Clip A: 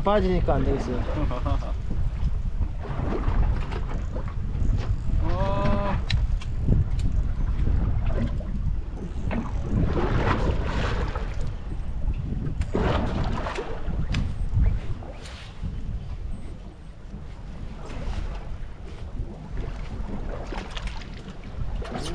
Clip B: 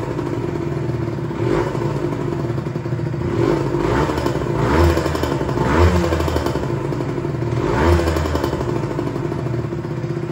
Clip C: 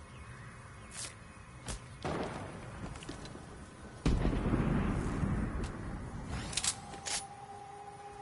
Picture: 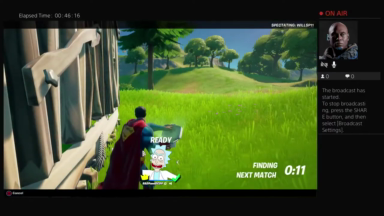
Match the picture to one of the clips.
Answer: C